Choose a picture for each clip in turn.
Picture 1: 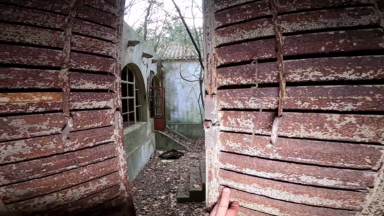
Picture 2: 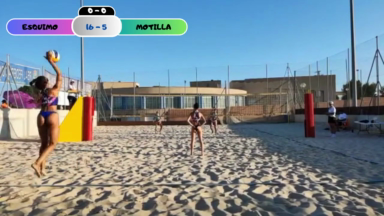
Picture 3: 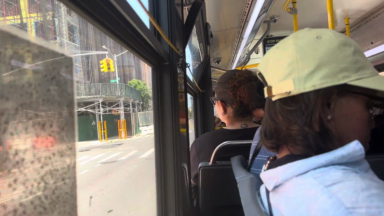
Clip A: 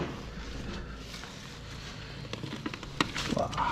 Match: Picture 1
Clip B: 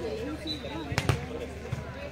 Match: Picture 2